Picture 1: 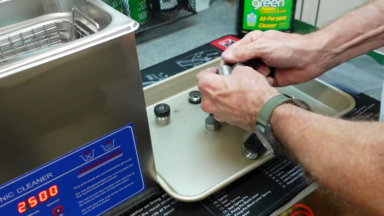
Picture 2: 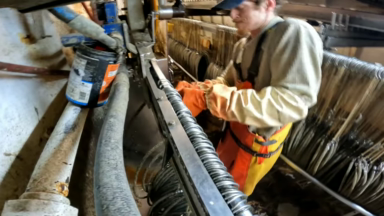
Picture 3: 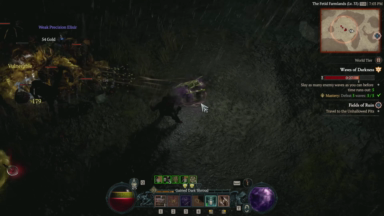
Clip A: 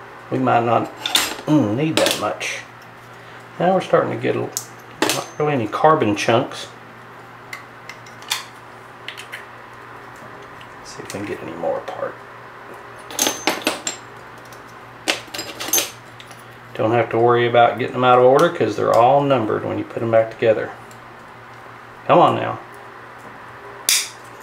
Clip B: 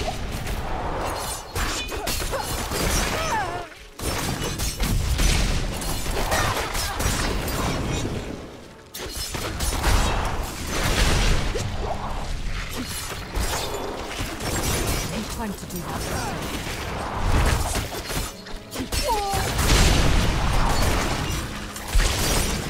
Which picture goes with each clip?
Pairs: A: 1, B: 3